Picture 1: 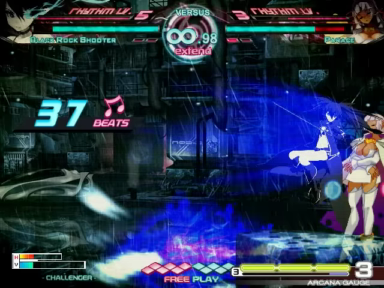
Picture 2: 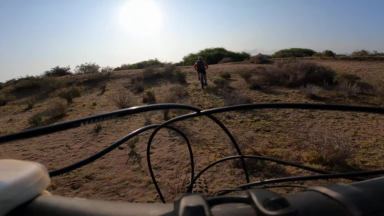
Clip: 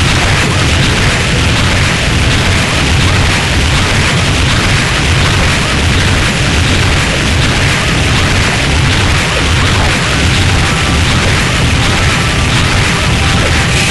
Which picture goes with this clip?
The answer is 1